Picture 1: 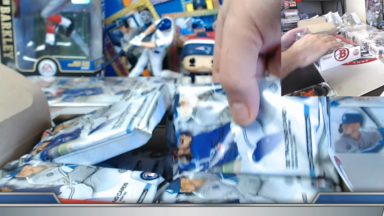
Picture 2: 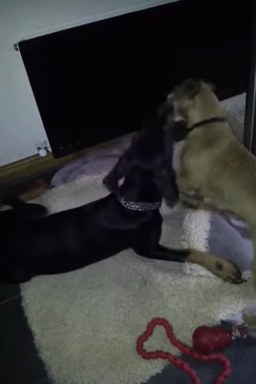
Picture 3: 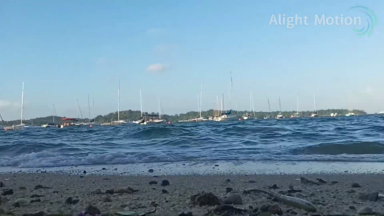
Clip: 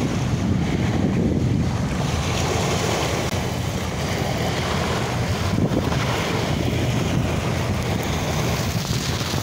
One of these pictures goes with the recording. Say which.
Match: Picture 3